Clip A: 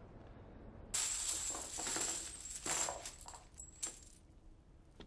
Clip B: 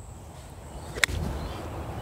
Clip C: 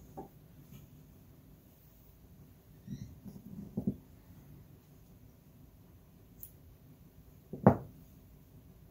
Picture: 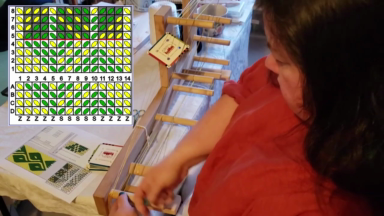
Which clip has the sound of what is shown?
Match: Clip C